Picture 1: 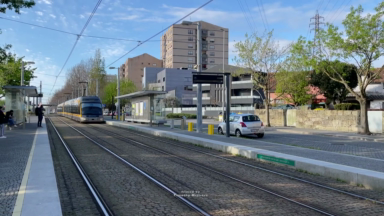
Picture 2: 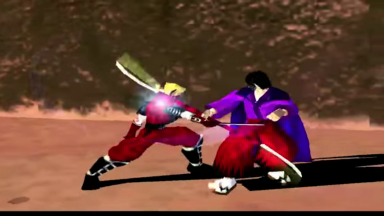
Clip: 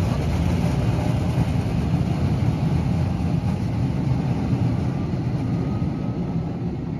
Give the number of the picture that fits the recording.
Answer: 1